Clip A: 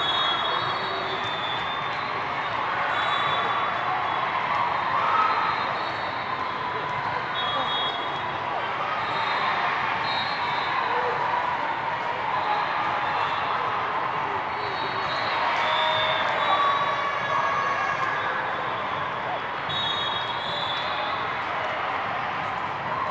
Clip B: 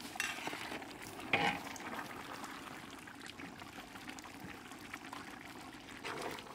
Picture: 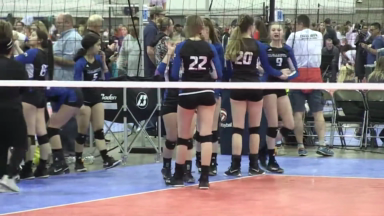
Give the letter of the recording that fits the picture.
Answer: A